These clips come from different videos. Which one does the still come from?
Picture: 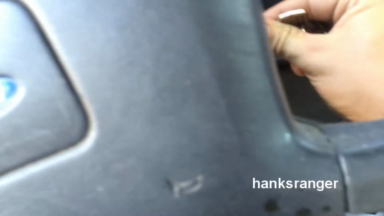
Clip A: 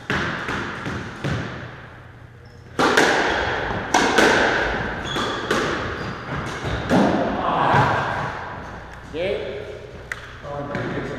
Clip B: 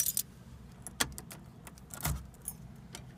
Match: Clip B